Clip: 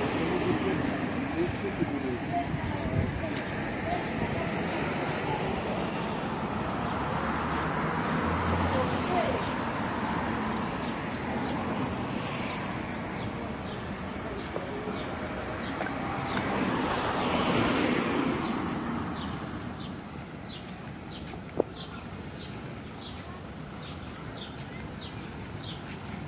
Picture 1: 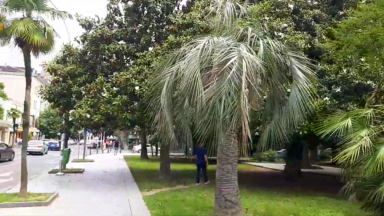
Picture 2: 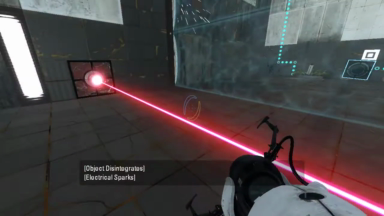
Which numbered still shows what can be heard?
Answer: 1